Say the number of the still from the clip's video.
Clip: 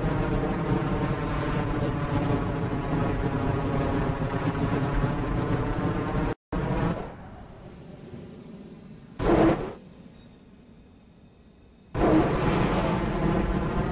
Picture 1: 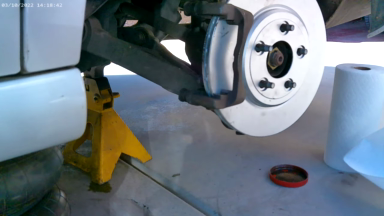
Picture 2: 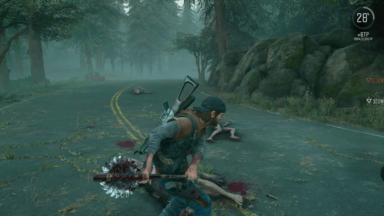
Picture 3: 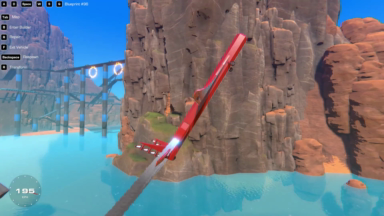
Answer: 3